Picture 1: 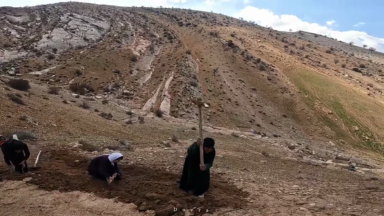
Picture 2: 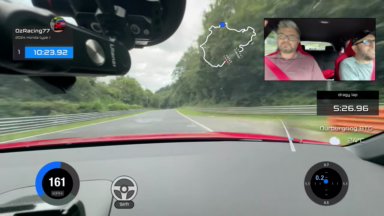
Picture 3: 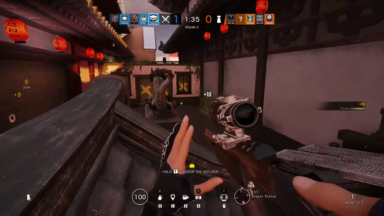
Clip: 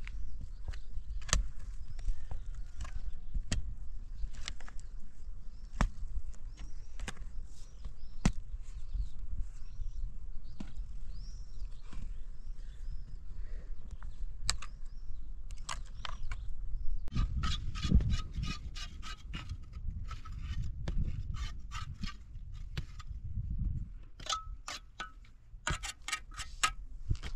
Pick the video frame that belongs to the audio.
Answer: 1